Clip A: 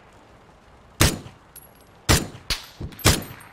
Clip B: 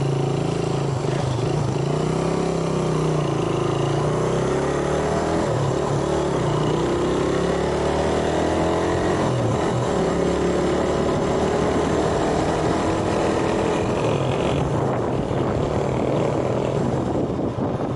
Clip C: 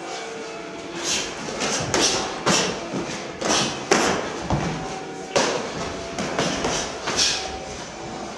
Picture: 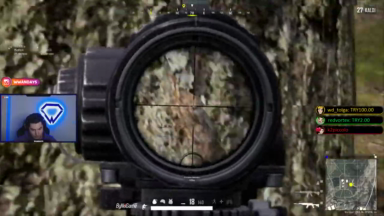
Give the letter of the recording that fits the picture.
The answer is A